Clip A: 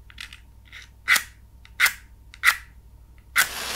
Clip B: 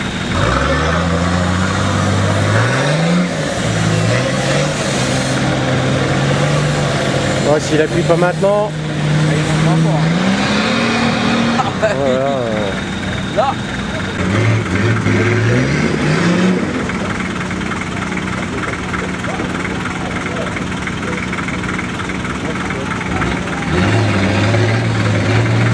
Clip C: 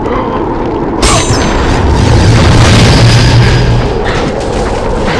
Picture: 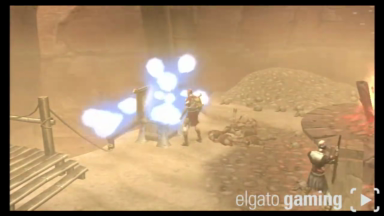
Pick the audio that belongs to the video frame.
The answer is C